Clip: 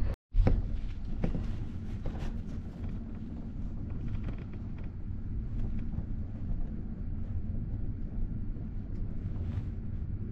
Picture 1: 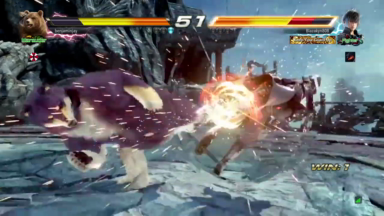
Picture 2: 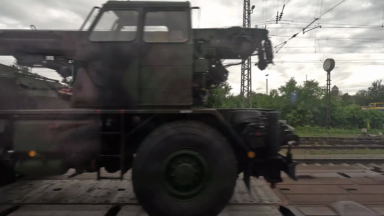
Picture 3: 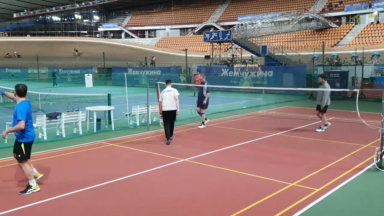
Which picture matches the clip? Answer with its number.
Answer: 2